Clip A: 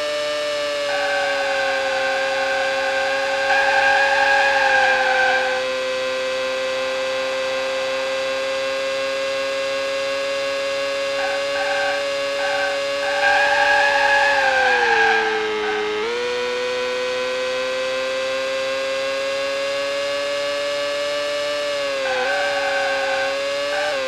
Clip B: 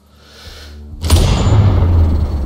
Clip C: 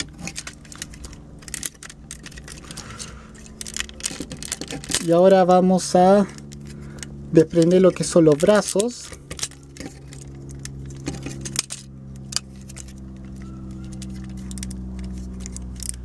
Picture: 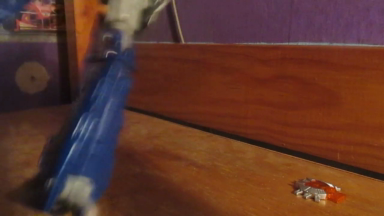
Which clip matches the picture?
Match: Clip C